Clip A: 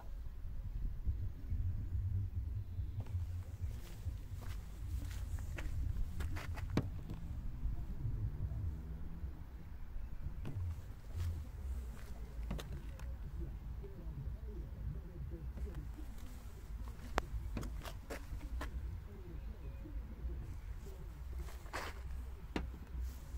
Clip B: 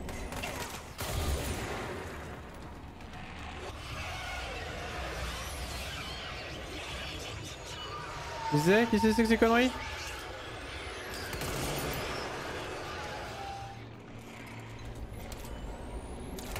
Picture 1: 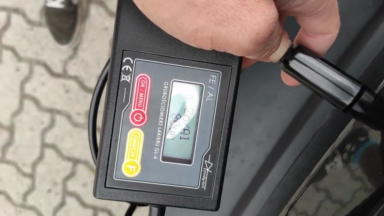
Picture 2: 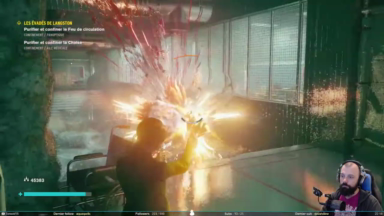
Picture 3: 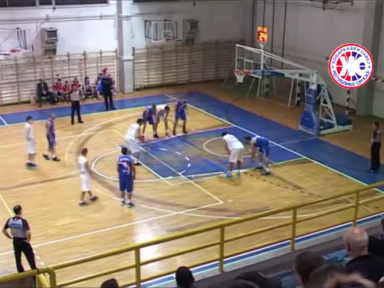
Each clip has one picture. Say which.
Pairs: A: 1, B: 2